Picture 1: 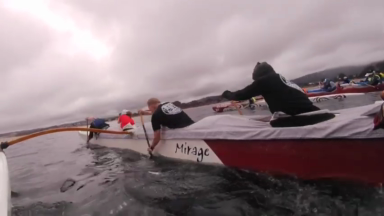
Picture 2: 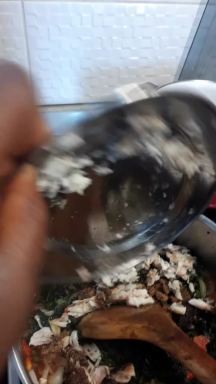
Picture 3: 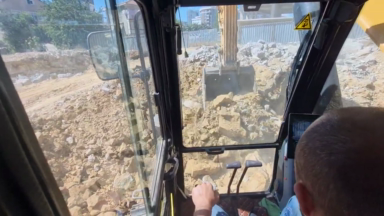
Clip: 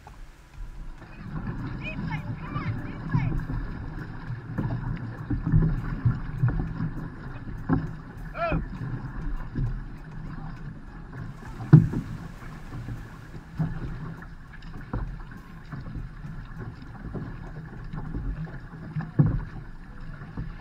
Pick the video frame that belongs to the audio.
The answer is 1